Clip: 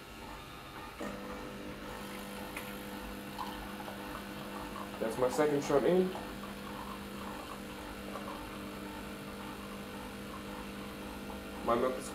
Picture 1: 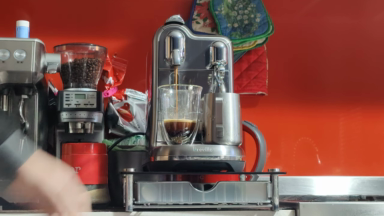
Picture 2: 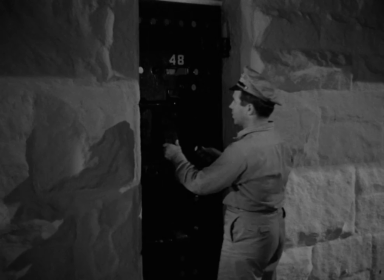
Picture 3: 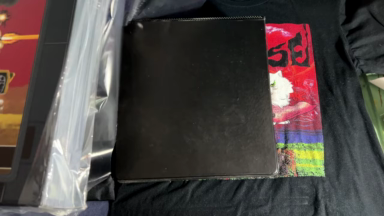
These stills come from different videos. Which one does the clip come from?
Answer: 1